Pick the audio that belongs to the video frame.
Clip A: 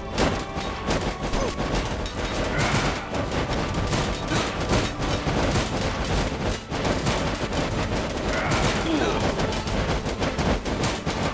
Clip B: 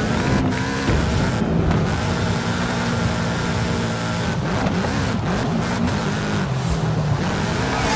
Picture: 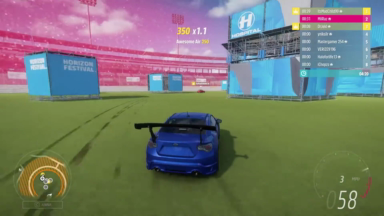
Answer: B